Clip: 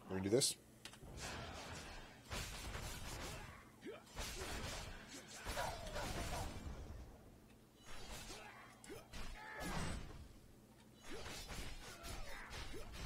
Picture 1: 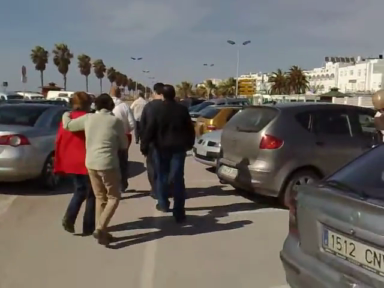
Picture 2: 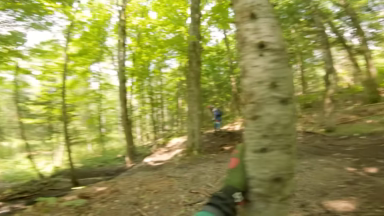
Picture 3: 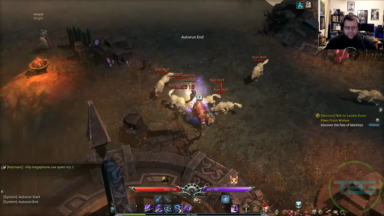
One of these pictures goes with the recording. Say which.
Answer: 3